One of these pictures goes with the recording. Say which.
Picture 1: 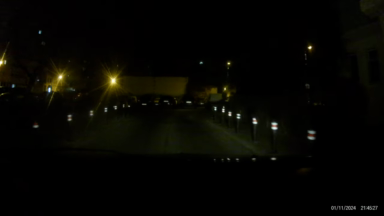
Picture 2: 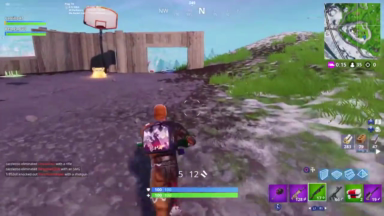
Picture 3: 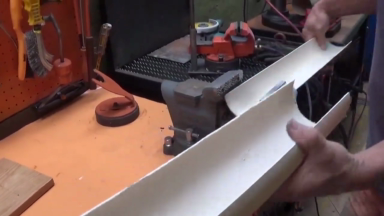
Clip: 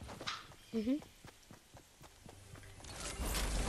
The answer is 2